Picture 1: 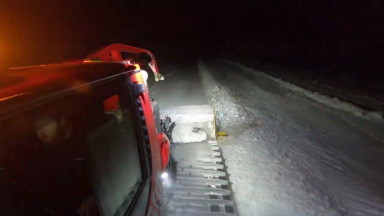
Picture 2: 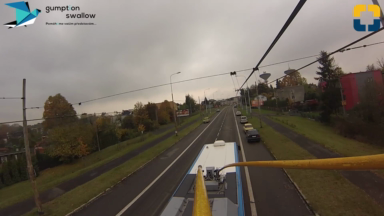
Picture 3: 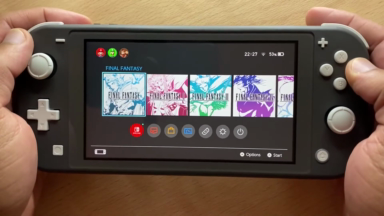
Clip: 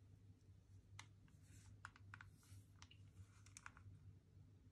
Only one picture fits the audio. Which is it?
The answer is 3